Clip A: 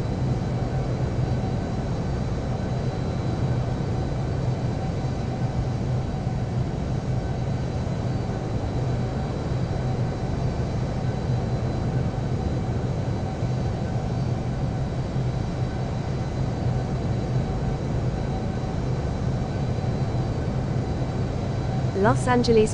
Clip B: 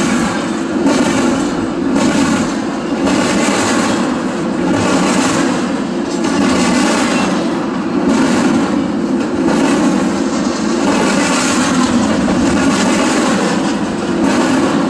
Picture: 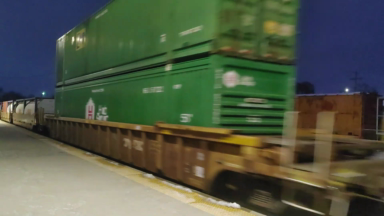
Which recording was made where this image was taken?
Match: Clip B